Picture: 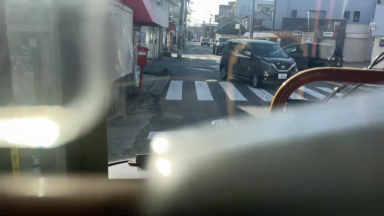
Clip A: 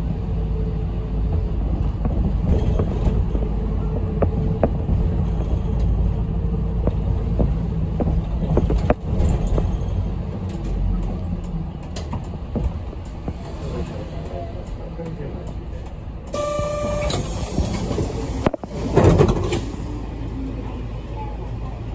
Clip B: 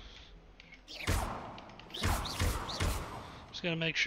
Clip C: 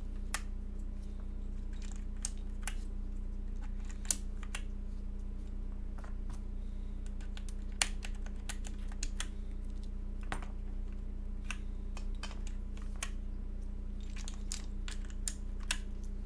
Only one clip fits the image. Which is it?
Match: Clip A